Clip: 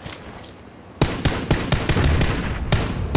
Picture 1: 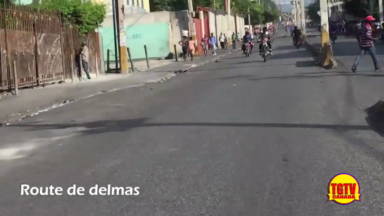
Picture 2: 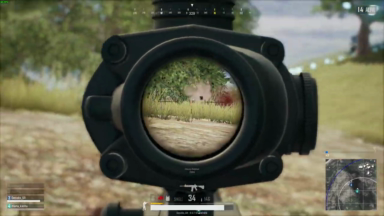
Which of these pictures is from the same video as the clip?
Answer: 2